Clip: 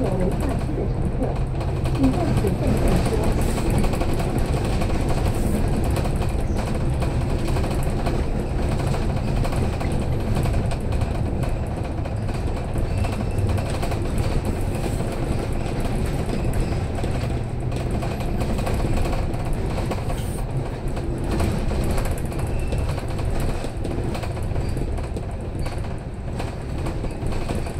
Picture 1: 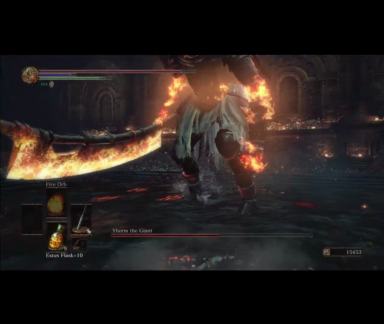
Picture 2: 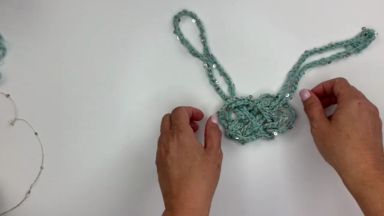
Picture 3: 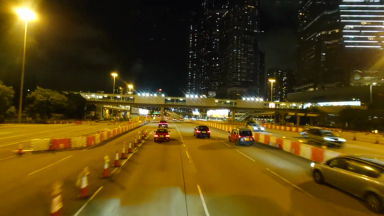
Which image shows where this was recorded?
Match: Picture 3